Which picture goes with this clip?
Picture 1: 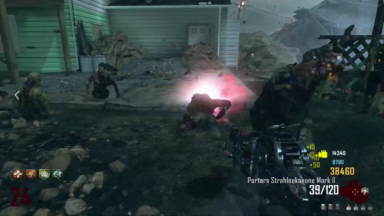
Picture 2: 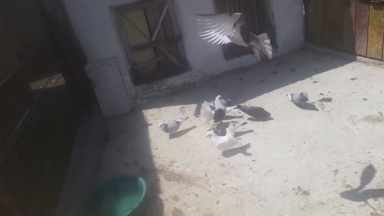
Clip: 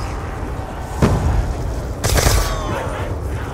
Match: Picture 1